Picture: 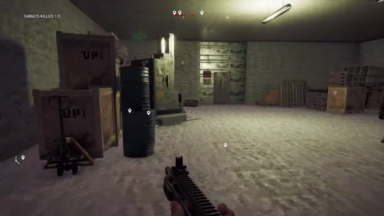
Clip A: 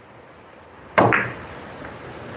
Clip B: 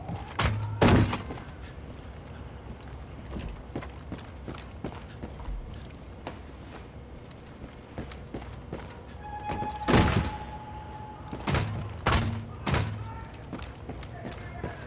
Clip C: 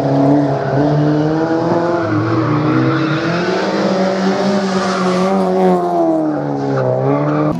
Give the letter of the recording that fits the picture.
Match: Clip B